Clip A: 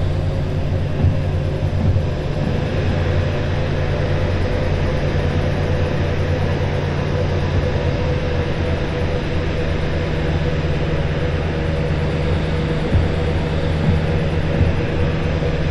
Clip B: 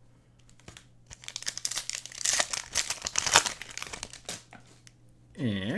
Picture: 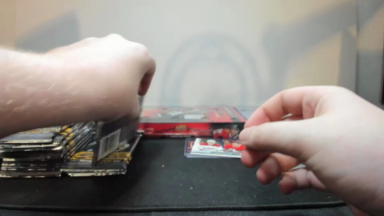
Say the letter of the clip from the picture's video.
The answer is B